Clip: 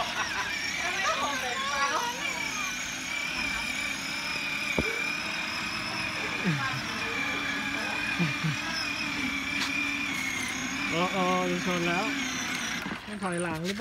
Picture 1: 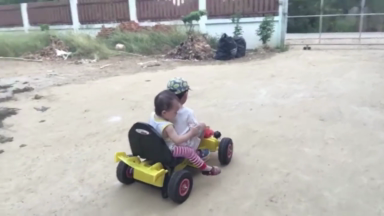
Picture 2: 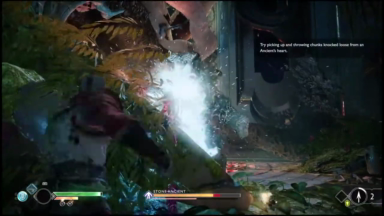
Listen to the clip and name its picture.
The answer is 1